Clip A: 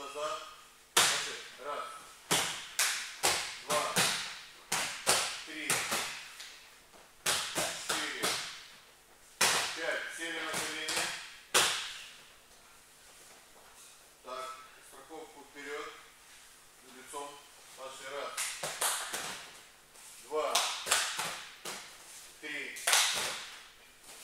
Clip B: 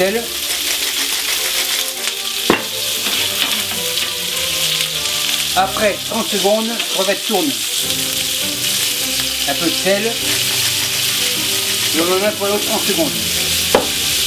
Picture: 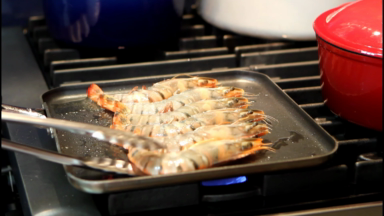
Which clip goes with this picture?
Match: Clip B